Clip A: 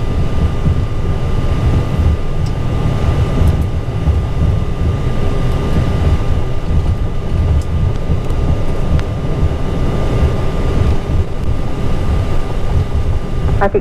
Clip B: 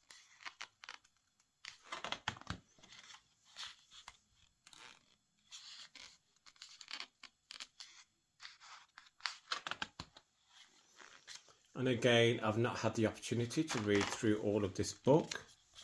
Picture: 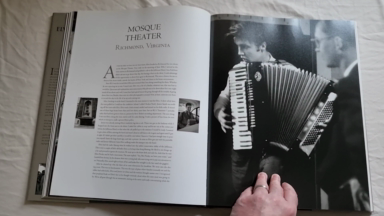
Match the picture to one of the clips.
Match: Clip B